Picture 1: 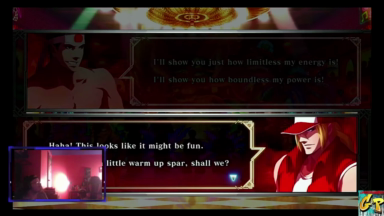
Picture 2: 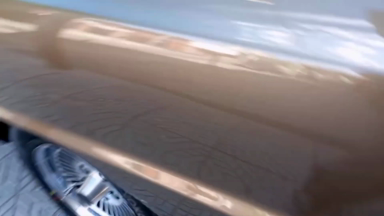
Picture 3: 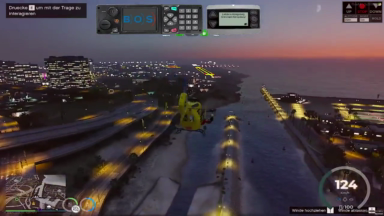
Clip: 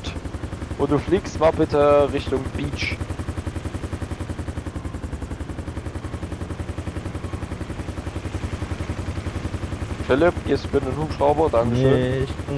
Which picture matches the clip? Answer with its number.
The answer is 3